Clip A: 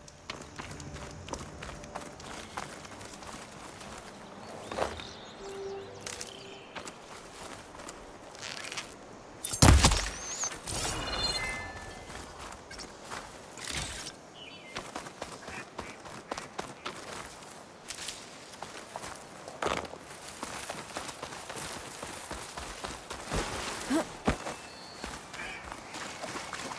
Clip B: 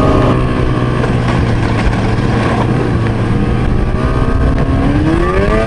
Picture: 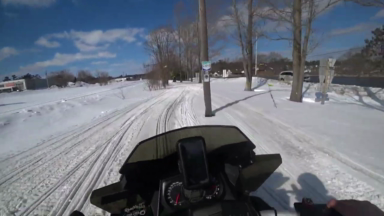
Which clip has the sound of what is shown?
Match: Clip B